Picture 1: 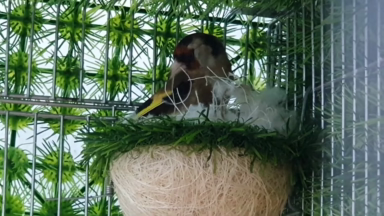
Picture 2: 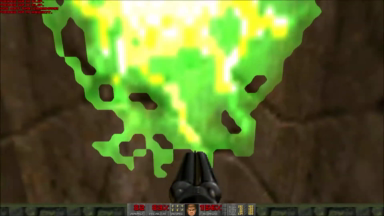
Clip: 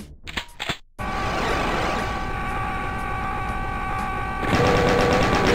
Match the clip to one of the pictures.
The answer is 2